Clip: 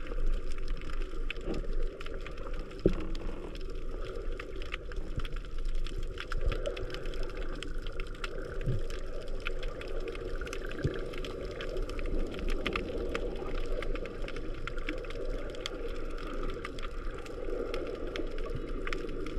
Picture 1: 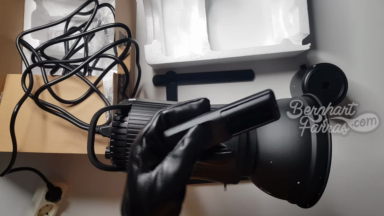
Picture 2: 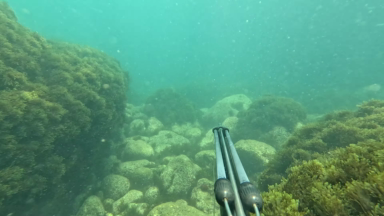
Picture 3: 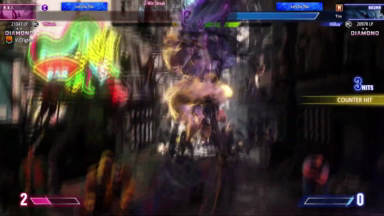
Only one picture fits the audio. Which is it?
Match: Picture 2